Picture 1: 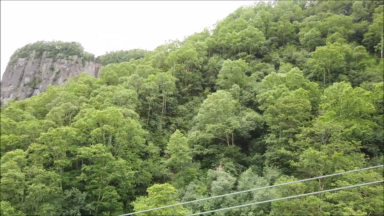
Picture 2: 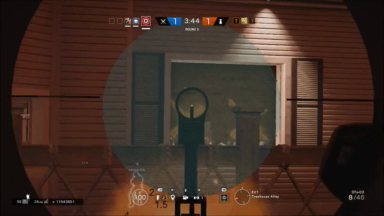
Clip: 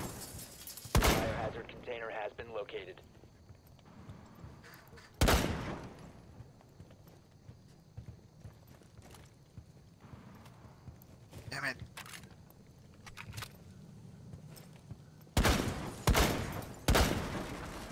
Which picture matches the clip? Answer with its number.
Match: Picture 2